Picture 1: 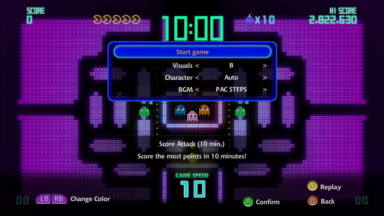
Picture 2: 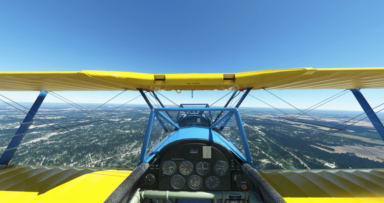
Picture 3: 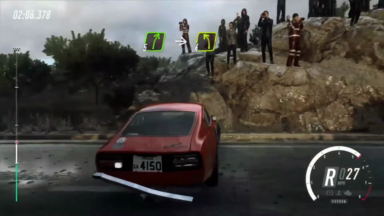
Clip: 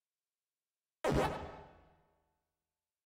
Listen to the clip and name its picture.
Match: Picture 1